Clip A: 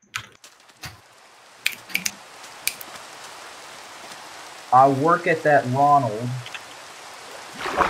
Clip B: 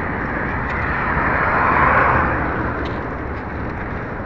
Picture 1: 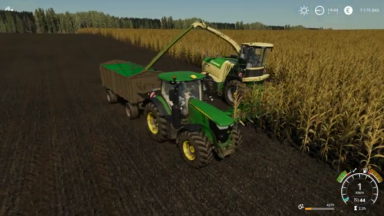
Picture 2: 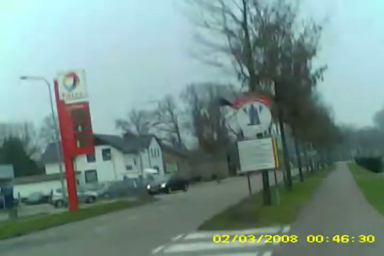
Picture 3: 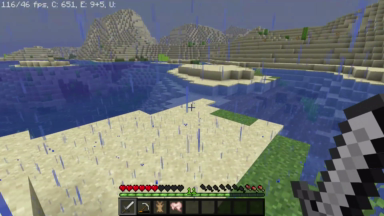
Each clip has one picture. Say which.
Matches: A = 3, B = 2